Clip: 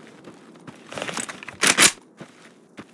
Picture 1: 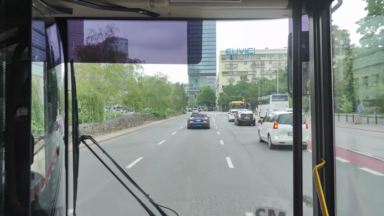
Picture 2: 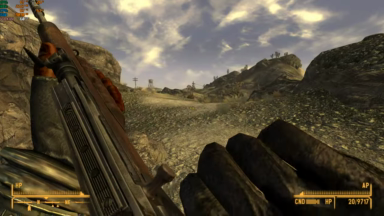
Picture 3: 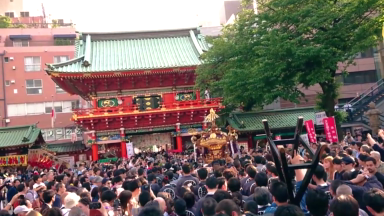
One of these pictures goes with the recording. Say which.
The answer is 2